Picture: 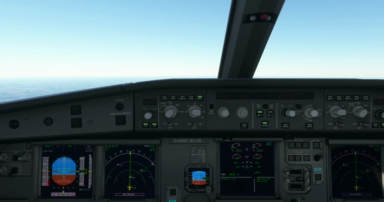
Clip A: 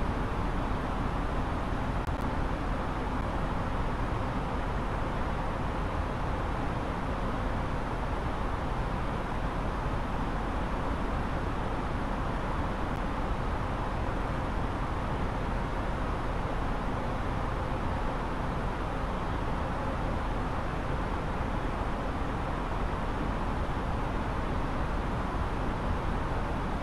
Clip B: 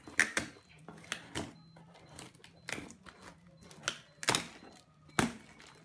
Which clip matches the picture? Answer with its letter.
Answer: A